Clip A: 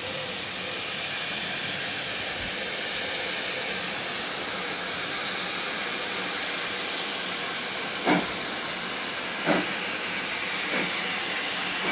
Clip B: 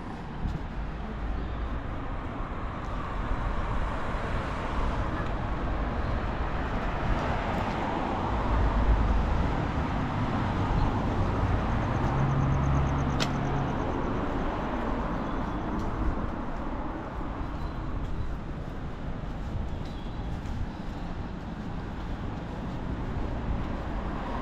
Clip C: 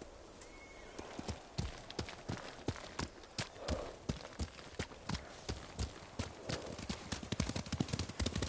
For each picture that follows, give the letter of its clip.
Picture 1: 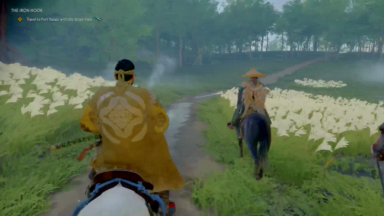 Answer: C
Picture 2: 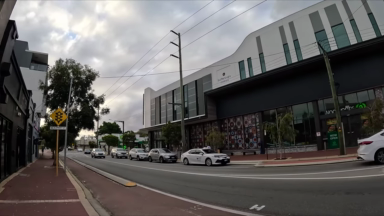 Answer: B